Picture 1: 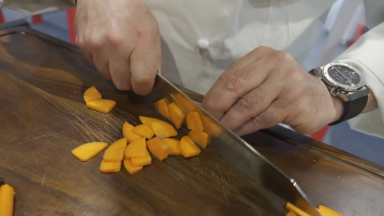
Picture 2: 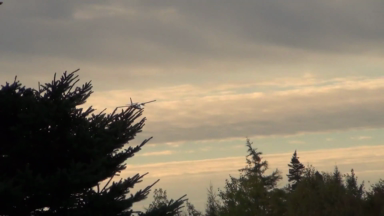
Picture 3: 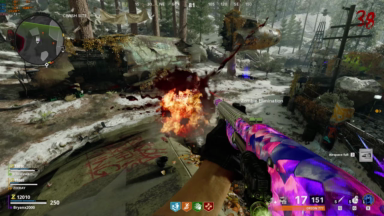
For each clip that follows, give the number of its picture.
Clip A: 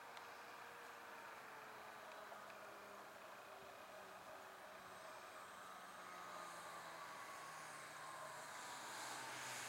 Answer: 2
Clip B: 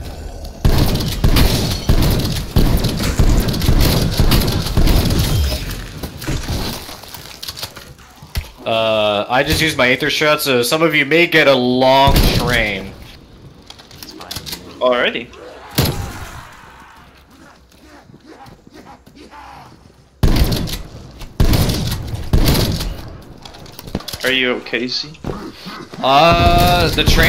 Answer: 3